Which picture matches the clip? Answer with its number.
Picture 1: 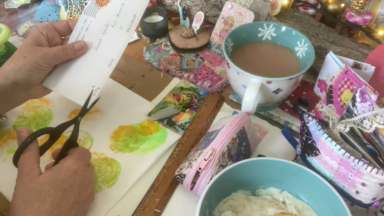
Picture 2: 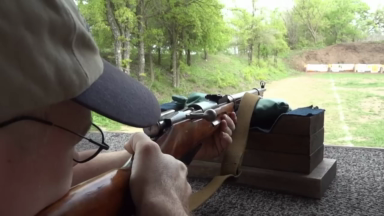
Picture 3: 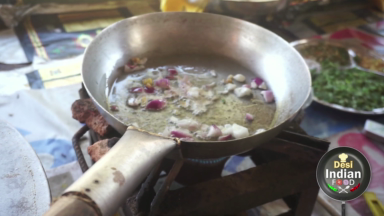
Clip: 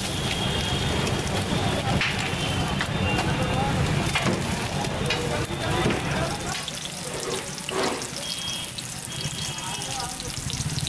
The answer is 3